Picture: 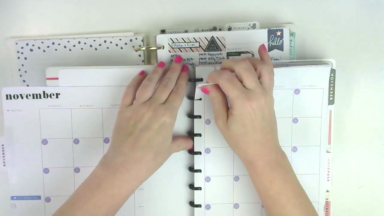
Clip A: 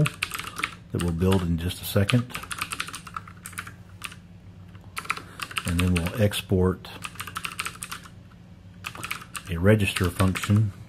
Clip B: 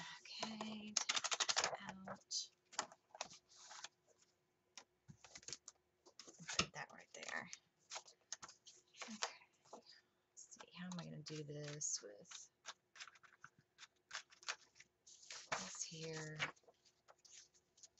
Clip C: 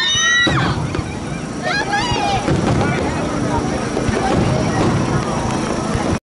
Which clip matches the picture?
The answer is B